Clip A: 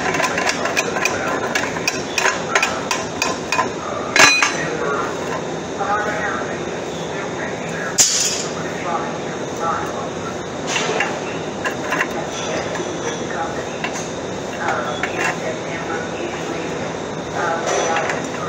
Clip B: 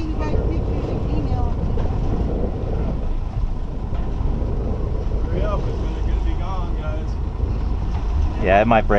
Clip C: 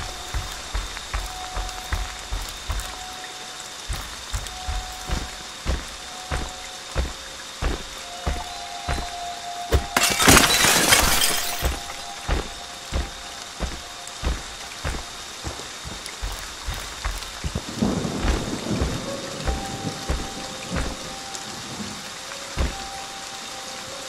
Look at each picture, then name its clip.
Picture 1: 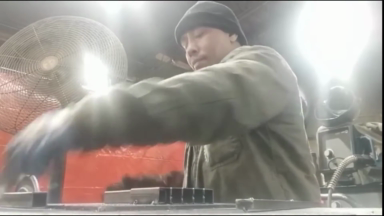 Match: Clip A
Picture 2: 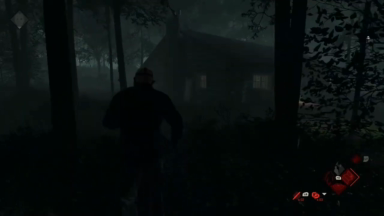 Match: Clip C